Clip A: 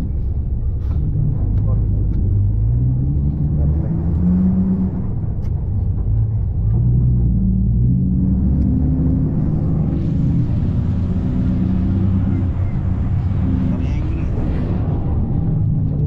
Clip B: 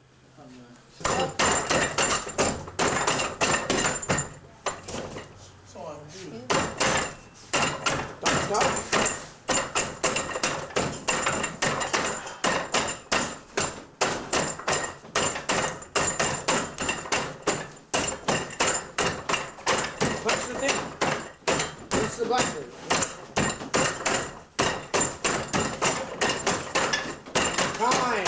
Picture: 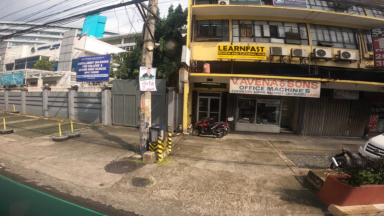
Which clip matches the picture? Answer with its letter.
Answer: A